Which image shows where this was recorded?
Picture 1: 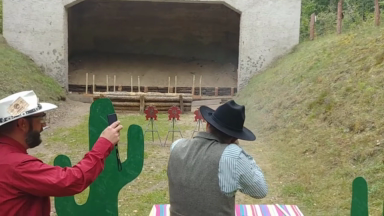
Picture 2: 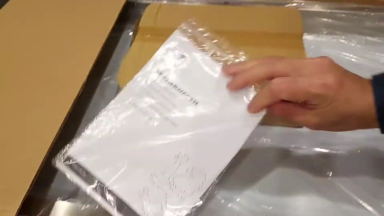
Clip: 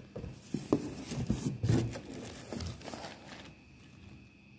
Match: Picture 2